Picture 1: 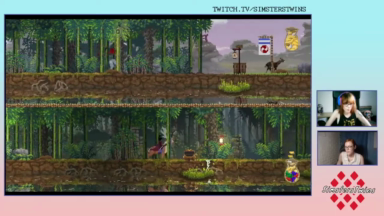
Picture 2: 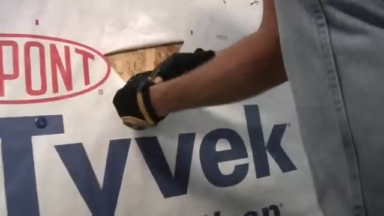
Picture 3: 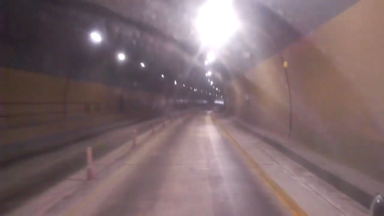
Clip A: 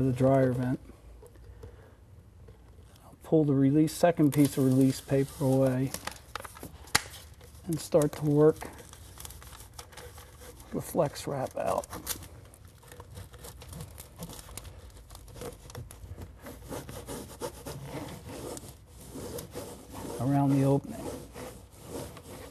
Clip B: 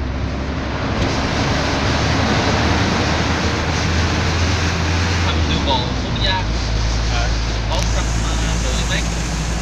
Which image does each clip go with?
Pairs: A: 2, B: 3